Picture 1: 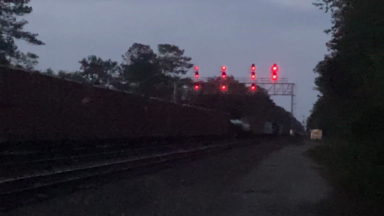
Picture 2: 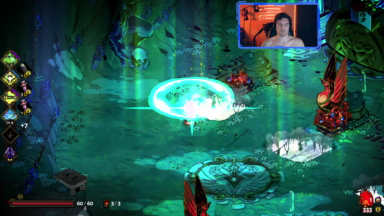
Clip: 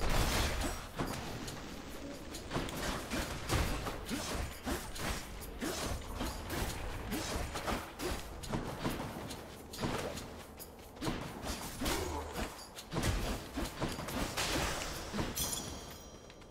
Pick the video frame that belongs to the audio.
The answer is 2